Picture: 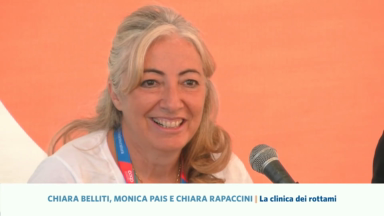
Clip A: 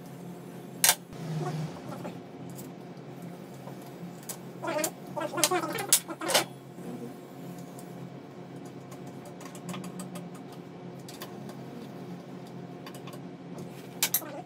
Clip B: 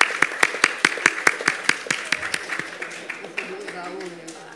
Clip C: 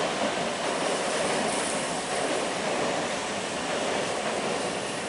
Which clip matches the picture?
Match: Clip B